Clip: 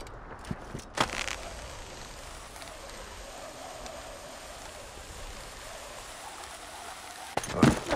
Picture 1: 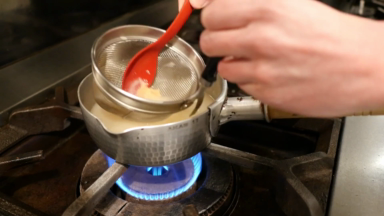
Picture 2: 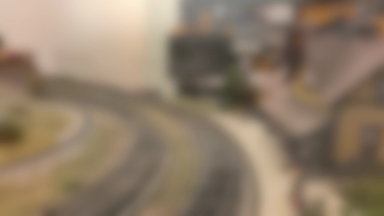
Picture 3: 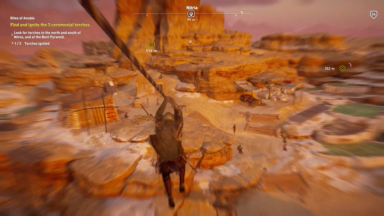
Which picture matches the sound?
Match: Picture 3